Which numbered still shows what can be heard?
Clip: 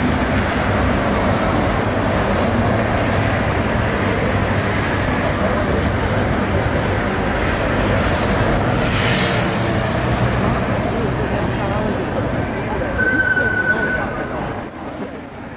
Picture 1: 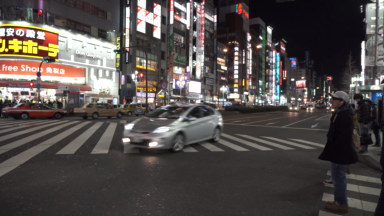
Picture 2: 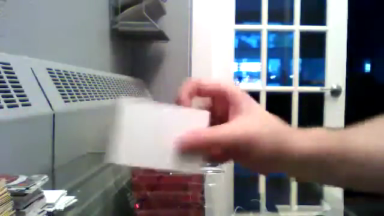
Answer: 1